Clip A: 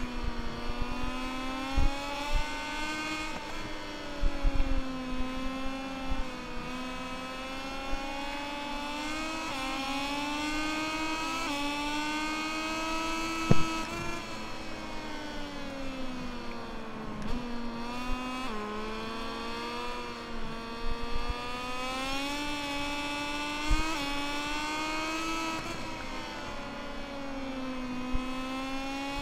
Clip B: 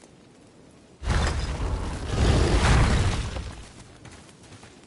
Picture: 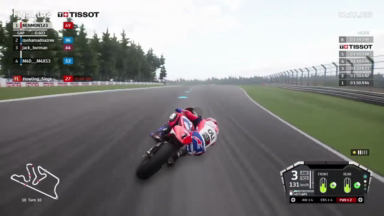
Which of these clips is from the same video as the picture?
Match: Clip A